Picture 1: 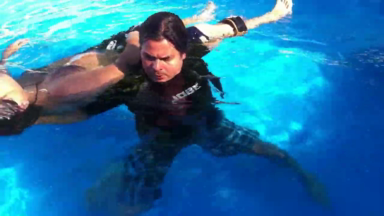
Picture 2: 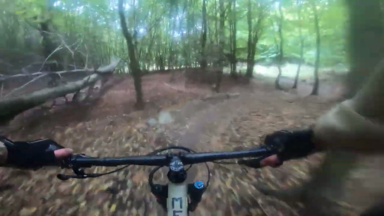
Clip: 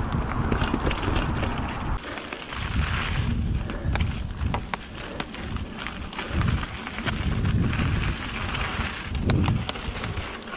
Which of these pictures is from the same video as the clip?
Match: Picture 2